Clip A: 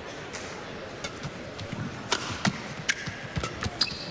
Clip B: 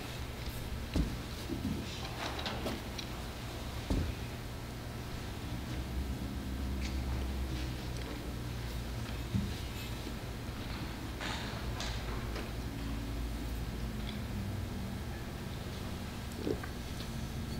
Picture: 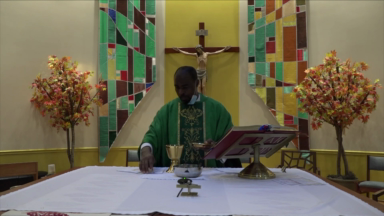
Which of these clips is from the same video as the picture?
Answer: B